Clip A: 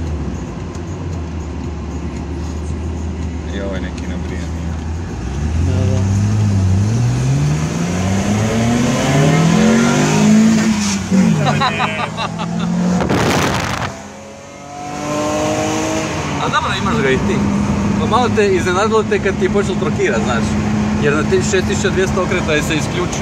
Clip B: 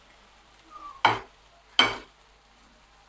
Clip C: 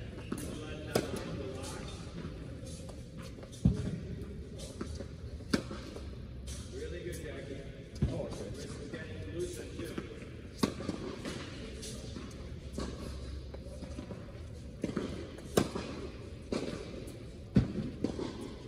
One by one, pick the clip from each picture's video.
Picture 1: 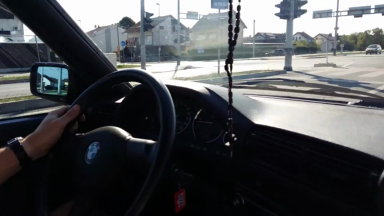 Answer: A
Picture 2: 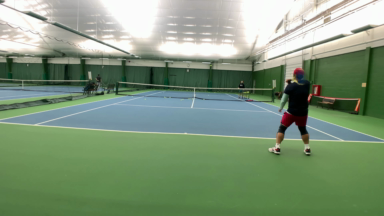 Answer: C